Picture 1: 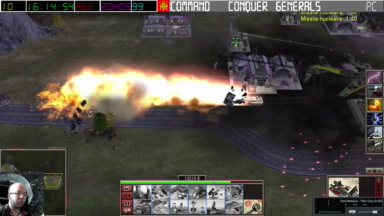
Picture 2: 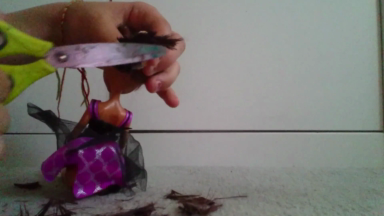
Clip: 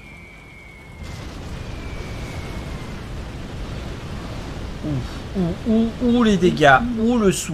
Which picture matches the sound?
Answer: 1